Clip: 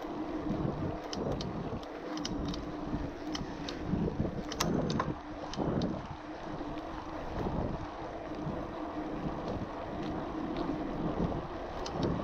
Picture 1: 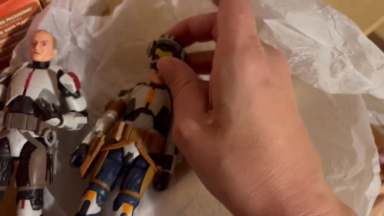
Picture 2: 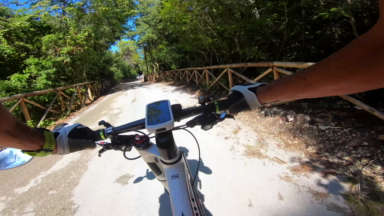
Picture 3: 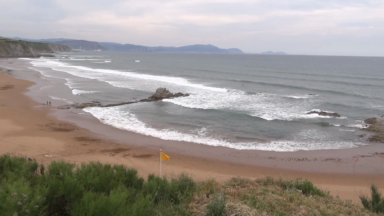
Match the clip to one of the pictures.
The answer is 2